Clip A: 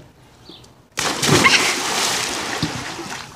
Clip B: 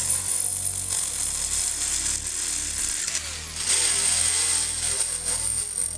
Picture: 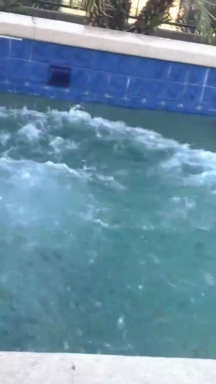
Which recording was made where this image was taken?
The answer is A